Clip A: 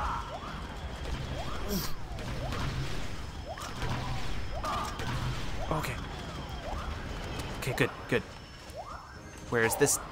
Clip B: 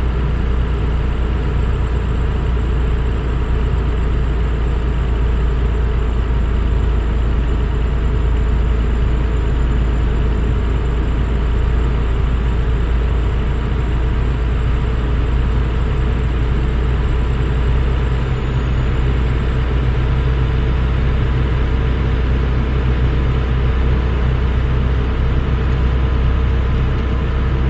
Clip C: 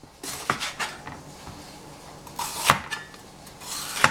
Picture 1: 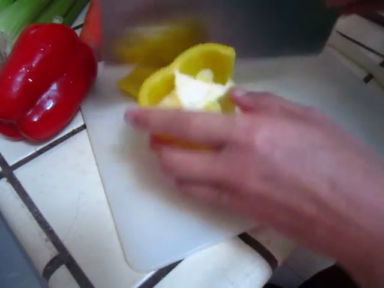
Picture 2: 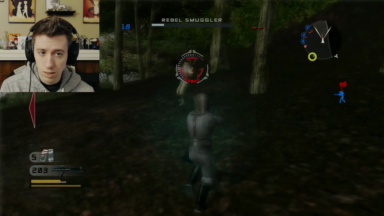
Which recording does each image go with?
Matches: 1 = C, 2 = A